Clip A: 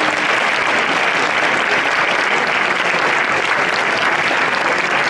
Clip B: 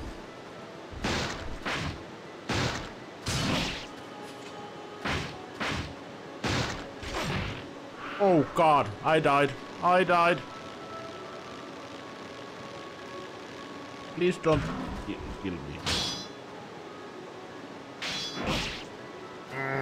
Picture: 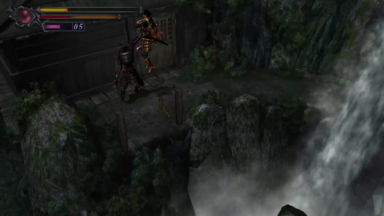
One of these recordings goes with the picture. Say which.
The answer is B